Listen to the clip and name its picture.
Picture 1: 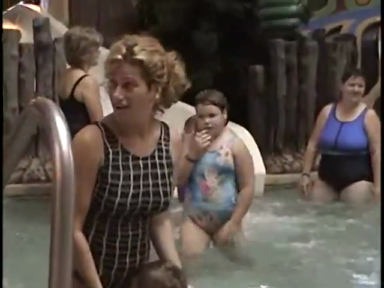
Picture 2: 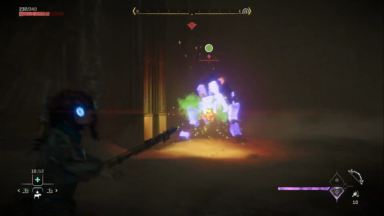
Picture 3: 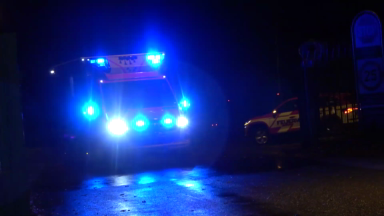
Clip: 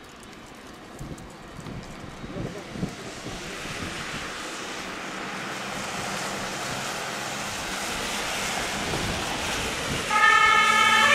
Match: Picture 3